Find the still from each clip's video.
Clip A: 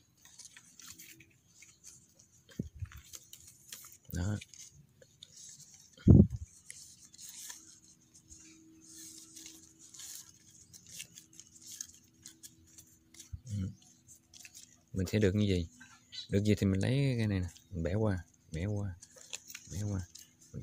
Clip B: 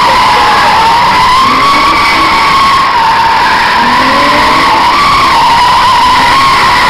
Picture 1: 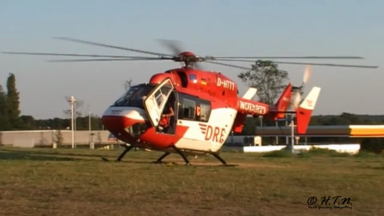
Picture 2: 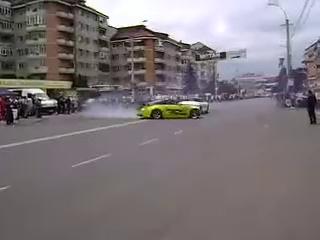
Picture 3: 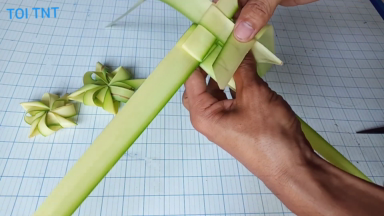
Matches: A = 3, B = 2